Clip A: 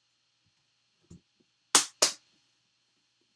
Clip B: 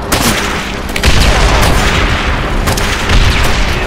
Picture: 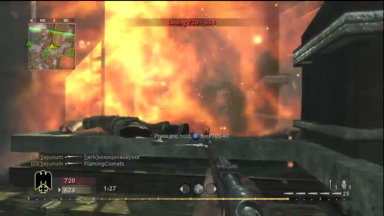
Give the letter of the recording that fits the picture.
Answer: B